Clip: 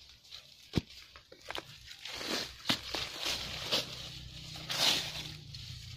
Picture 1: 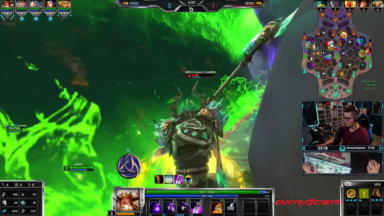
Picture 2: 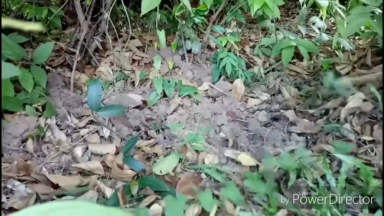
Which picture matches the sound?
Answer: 2